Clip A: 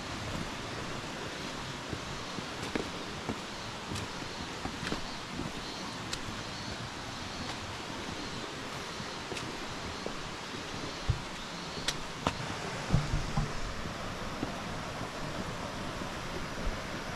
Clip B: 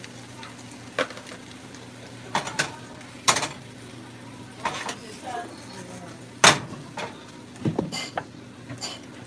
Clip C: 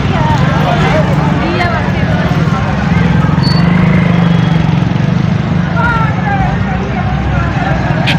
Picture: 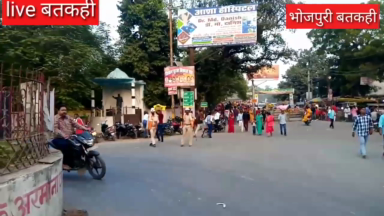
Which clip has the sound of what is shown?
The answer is C